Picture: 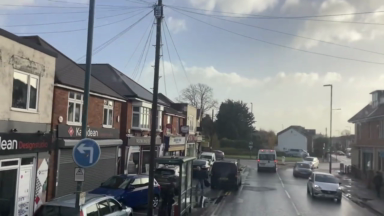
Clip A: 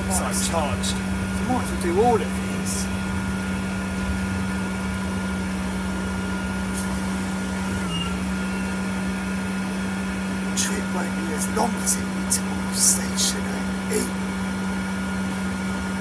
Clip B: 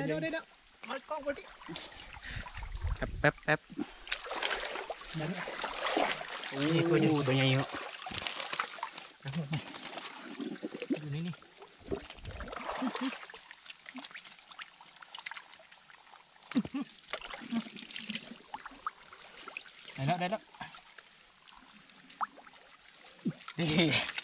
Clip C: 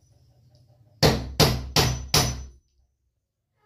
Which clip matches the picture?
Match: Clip A